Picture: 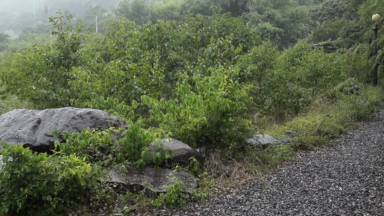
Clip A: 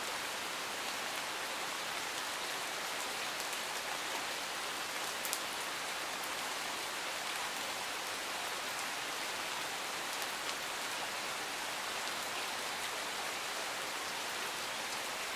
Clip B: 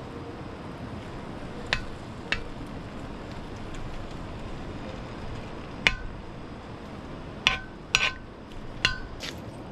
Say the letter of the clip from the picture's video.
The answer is A